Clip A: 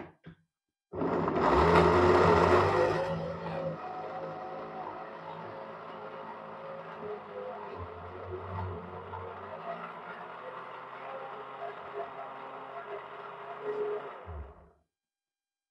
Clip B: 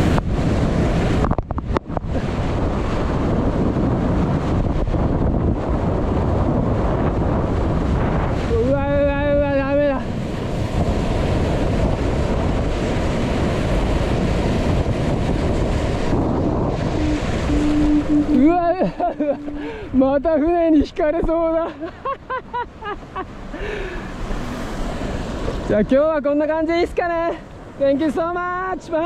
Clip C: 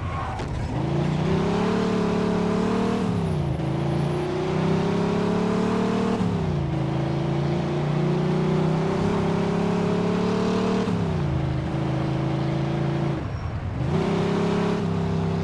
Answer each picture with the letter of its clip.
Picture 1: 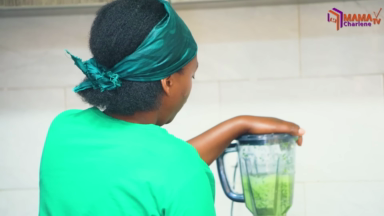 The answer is A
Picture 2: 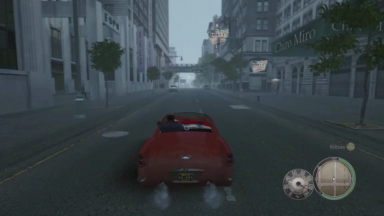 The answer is C